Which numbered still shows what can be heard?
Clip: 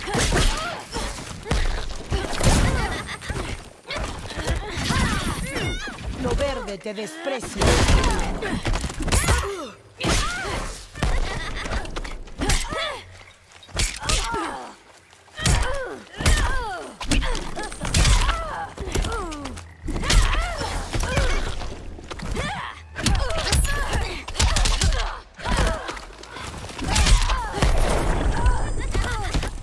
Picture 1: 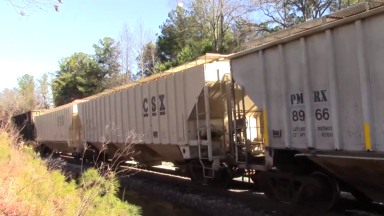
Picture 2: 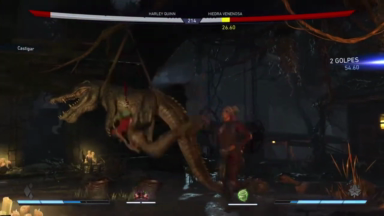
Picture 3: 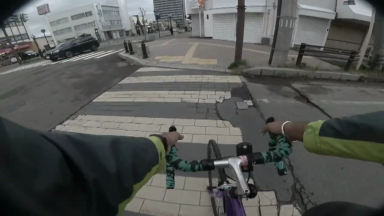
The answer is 2